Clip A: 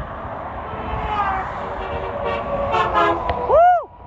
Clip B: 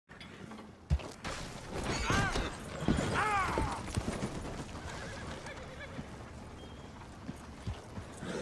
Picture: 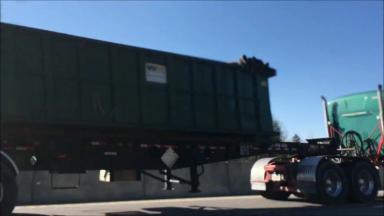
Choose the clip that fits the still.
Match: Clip A